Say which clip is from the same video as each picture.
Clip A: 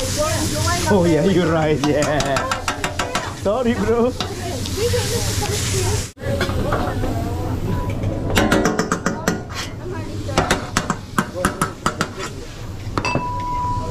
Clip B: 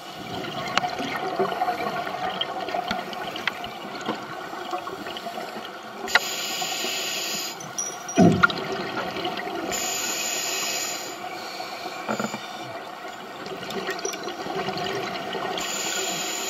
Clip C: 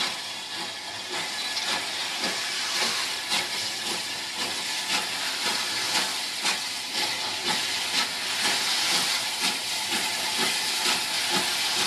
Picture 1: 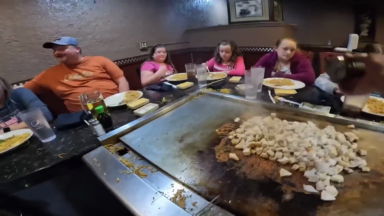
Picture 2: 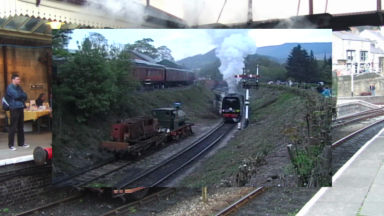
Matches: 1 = A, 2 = C